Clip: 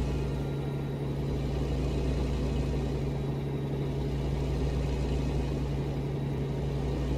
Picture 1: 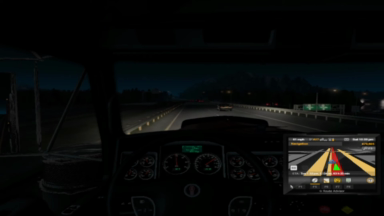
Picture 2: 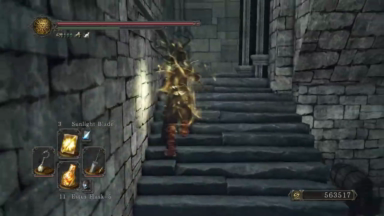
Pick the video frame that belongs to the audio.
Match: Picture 1